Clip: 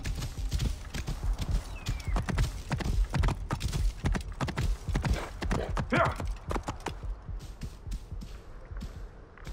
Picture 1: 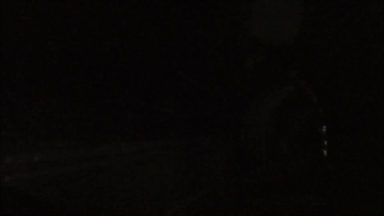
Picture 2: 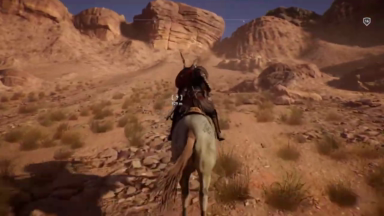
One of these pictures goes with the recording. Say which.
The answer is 2